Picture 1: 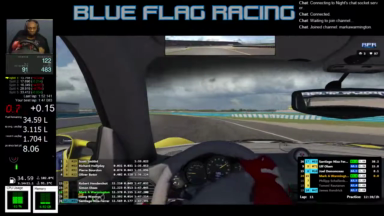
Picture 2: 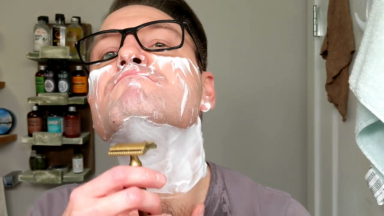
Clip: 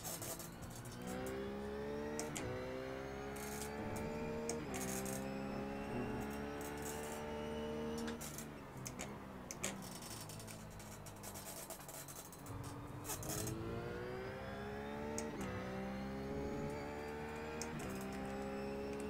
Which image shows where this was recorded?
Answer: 1